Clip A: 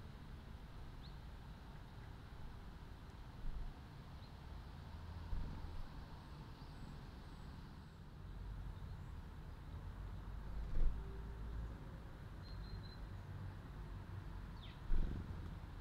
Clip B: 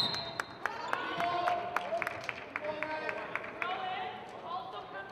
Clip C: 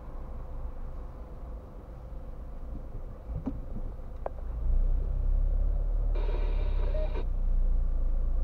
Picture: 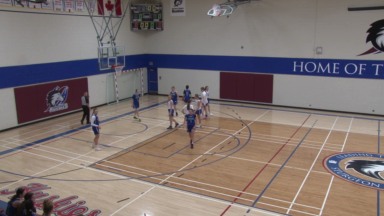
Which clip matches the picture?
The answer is B